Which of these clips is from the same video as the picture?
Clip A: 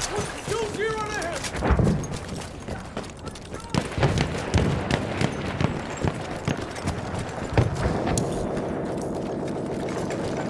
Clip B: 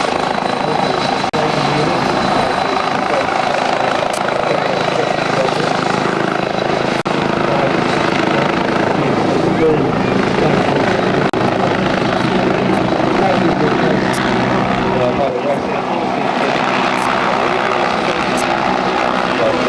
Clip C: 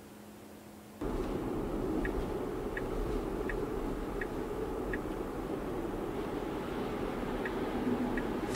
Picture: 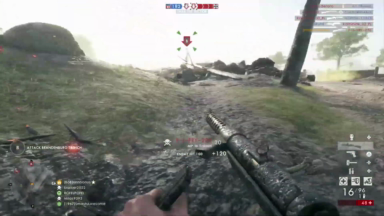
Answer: A